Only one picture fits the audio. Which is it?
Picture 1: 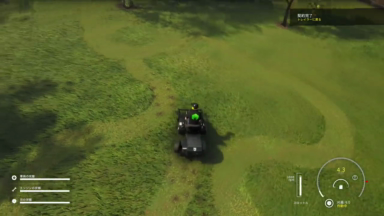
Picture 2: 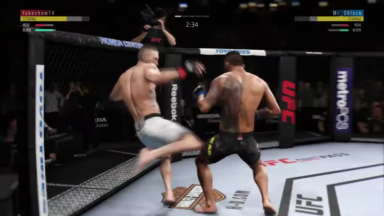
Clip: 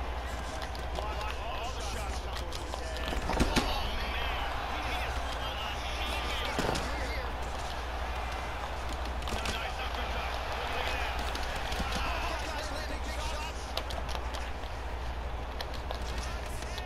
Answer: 2